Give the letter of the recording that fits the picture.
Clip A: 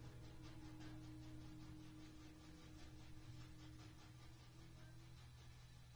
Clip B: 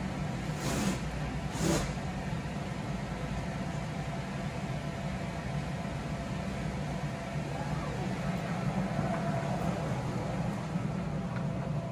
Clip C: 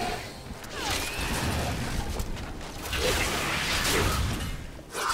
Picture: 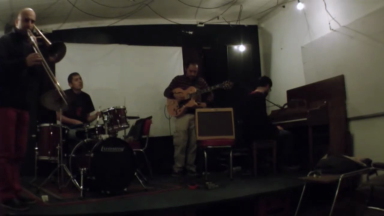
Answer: A